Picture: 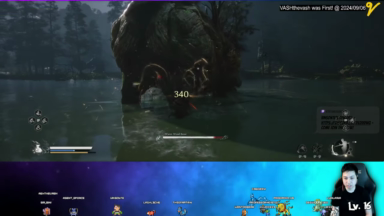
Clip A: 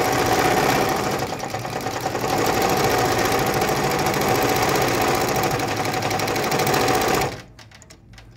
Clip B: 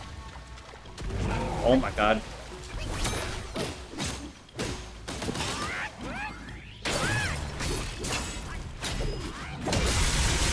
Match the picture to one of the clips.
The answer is B